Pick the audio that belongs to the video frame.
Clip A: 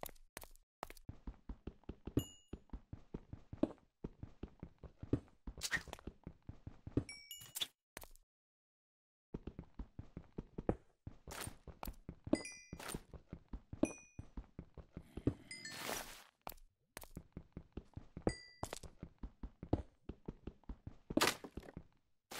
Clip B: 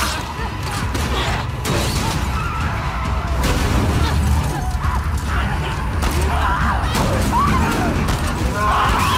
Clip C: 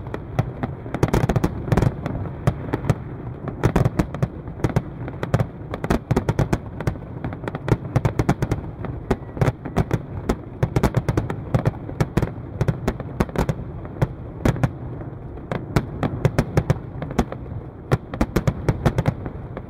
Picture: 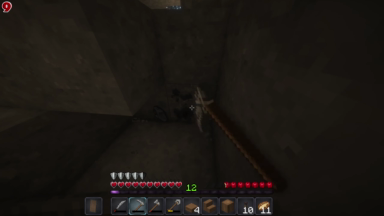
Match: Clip A